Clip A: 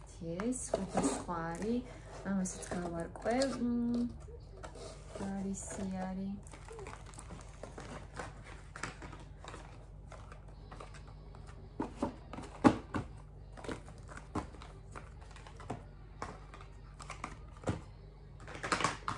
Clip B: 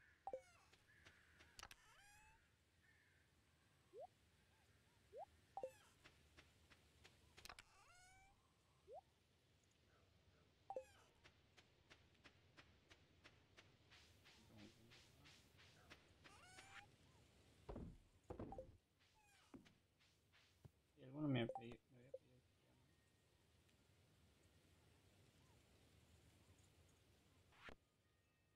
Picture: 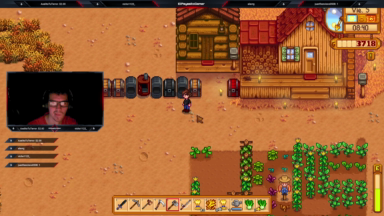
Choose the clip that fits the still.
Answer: B